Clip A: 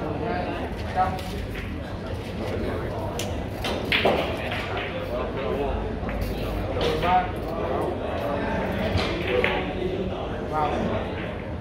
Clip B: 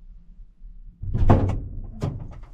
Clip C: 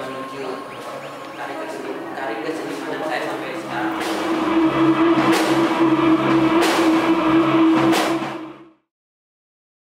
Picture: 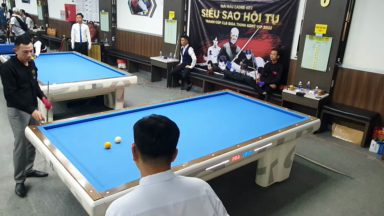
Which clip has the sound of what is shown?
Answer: A